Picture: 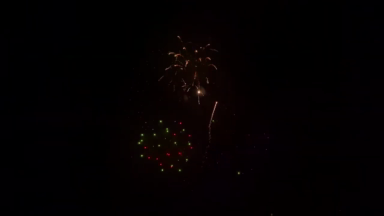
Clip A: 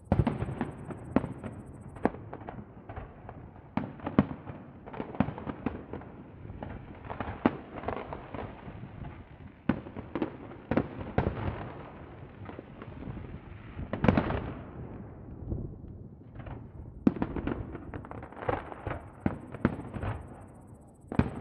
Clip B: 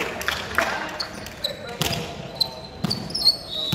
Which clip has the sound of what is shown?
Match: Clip A